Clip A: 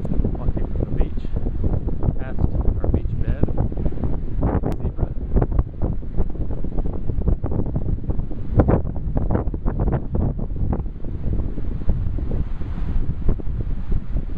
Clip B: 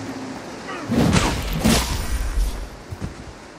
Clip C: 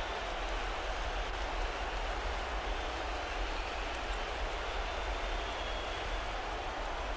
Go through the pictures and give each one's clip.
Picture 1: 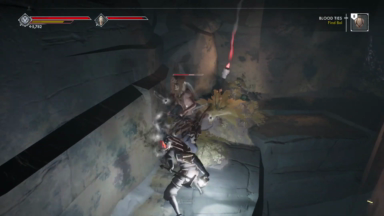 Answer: B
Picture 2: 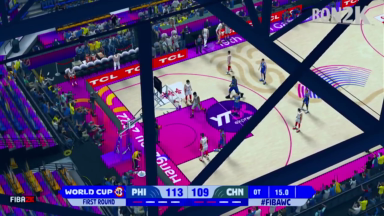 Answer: C